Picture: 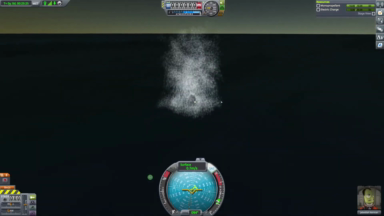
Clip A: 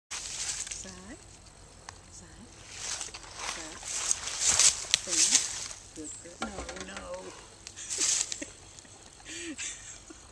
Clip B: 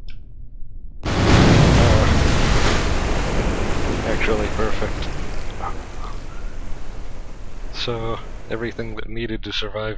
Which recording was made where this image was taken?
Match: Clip B